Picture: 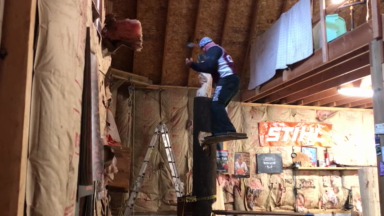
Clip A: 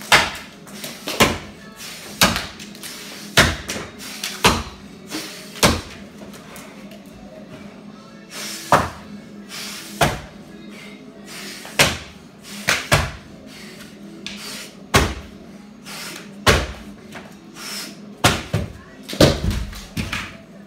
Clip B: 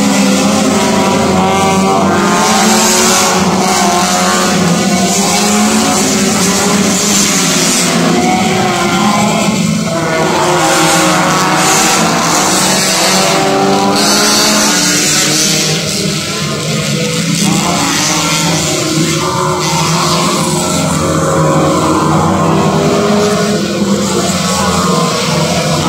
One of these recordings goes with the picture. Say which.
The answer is A